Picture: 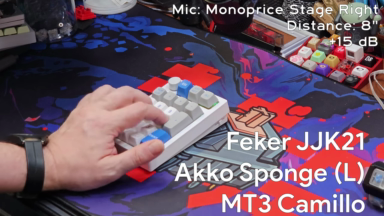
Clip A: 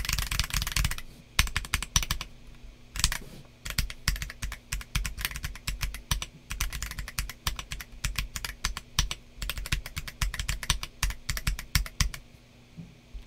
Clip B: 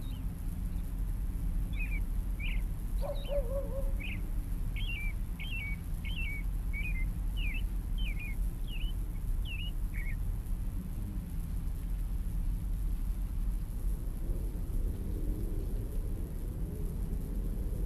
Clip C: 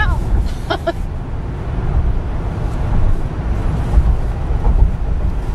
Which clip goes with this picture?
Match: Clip A